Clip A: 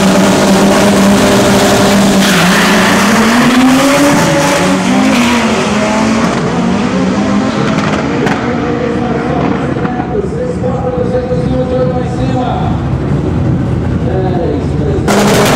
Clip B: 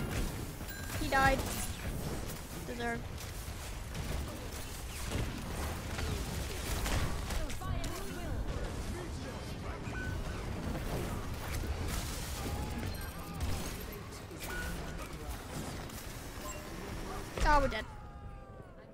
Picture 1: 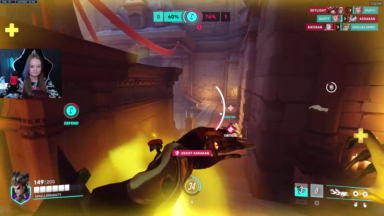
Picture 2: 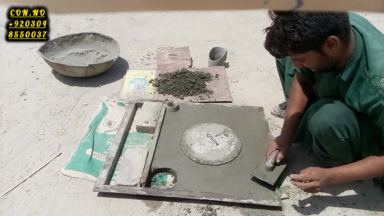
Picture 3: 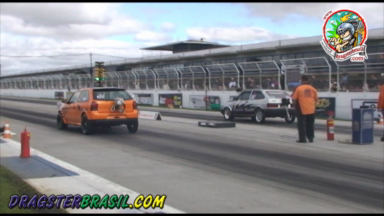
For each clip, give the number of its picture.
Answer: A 3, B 1